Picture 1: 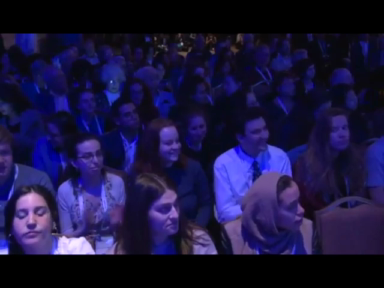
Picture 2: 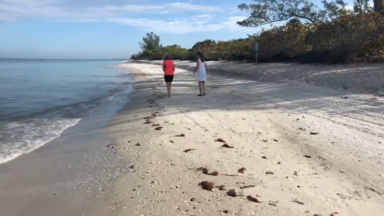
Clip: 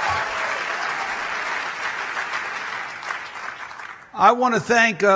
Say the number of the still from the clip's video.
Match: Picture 1